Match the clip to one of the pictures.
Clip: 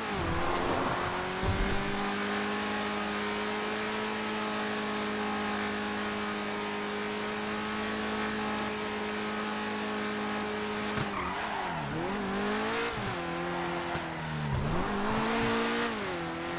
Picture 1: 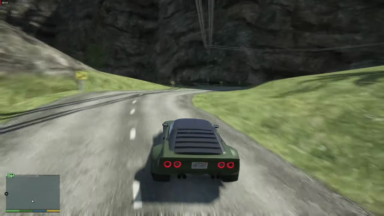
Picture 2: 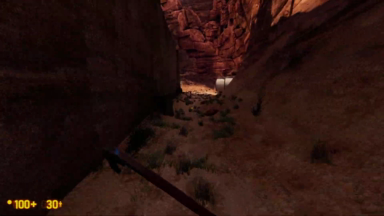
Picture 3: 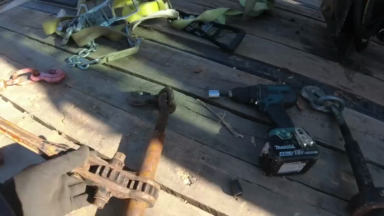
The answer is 1